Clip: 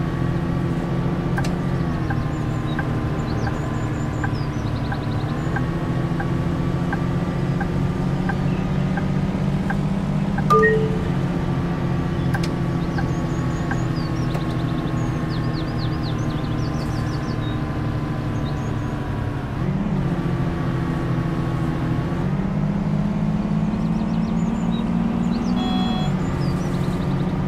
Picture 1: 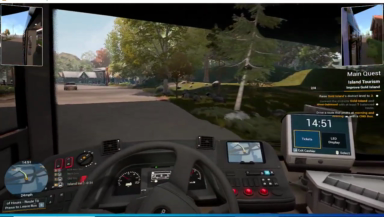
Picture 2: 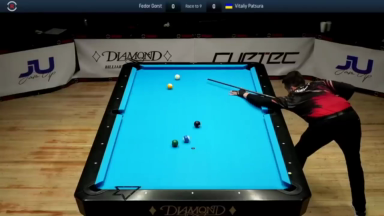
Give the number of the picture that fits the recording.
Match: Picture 1